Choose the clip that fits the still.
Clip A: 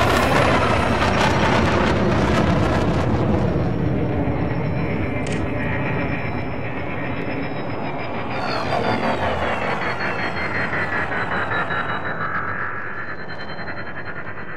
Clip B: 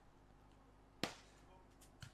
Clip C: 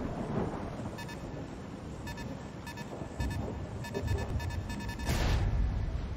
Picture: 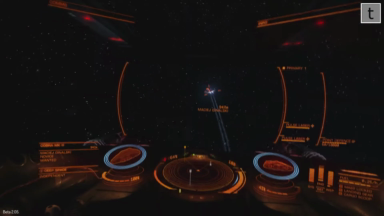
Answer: A